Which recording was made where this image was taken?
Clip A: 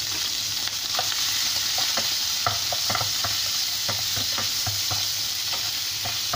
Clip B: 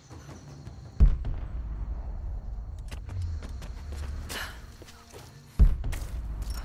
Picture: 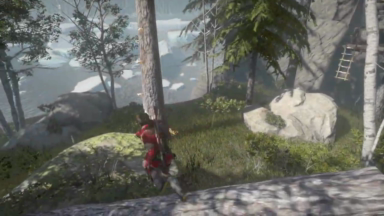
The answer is B